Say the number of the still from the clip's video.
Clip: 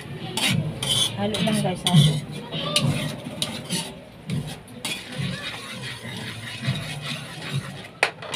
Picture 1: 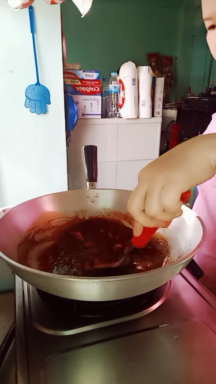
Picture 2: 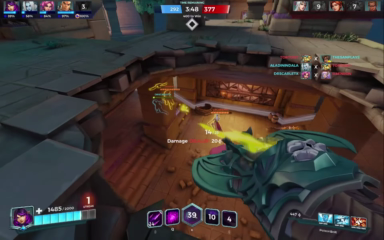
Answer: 1